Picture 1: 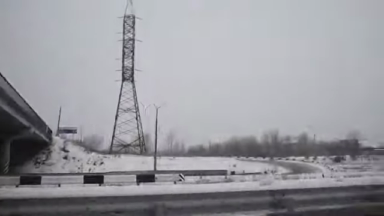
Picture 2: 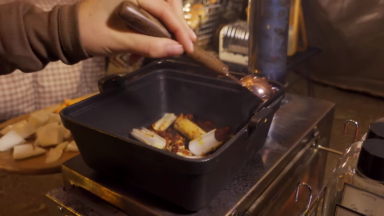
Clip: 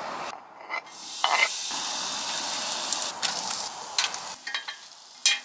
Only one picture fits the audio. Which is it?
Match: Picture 2